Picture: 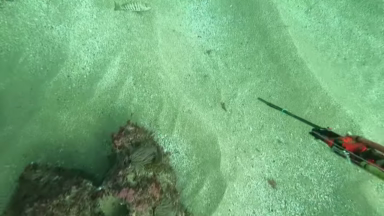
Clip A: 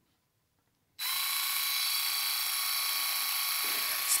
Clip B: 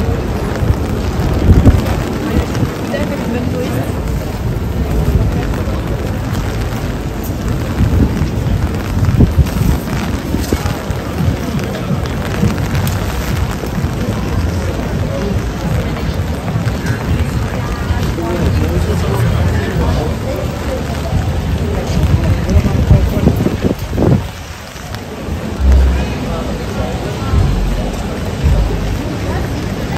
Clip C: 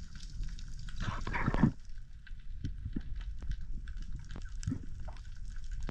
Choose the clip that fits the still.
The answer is C